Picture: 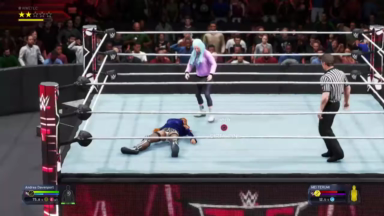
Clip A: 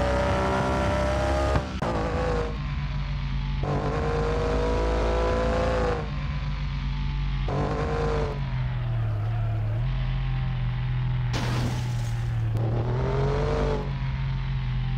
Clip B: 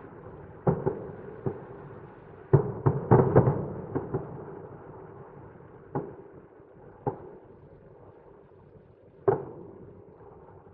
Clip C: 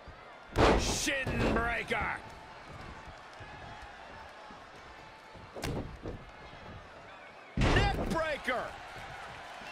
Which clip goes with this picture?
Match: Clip C